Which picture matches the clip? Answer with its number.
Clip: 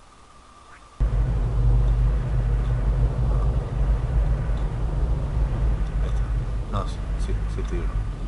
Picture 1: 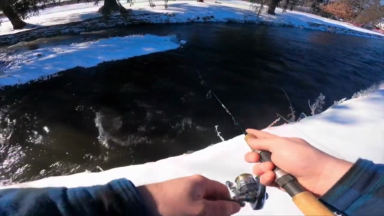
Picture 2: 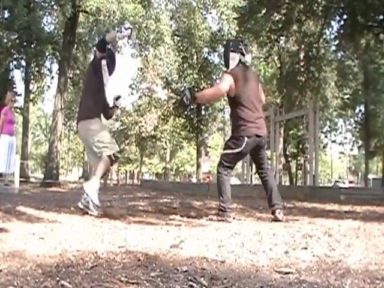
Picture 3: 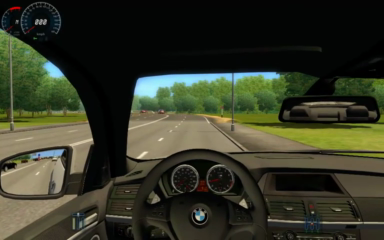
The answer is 3